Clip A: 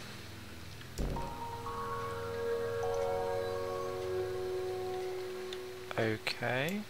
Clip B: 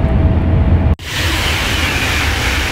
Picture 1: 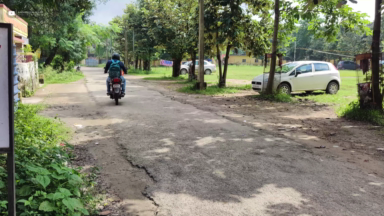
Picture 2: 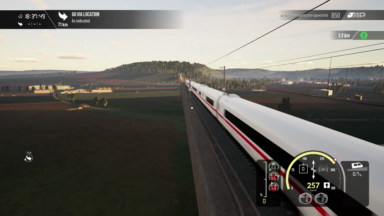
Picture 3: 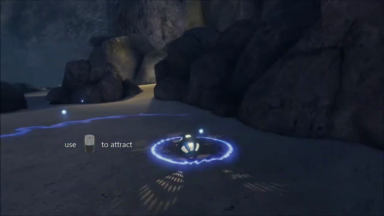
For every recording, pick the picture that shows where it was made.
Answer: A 3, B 2